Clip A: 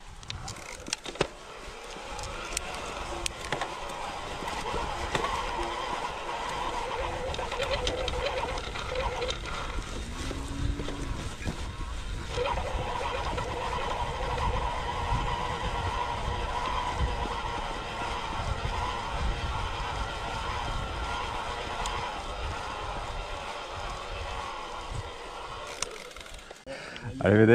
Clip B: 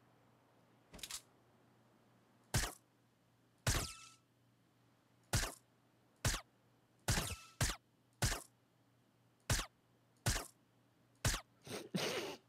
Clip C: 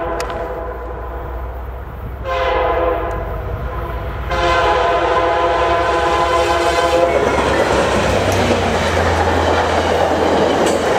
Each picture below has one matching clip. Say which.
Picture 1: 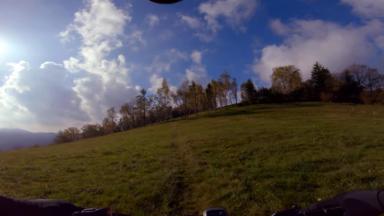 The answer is A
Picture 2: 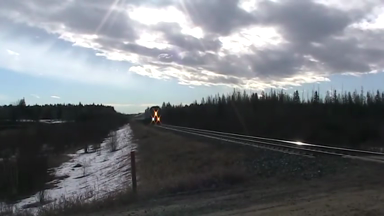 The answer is C